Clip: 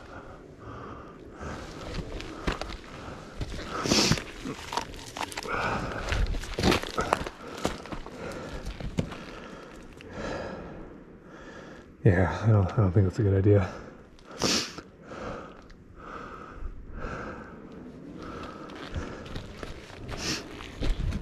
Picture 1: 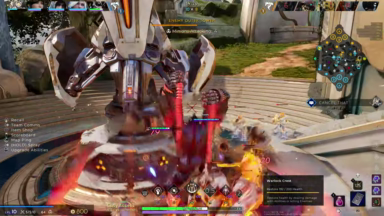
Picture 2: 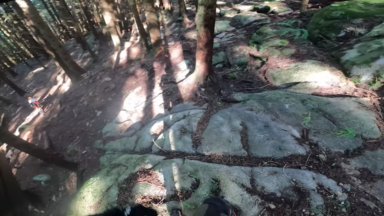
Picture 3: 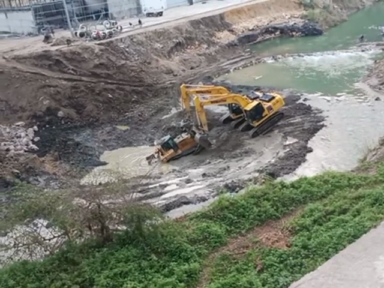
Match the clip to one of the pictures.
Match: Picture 2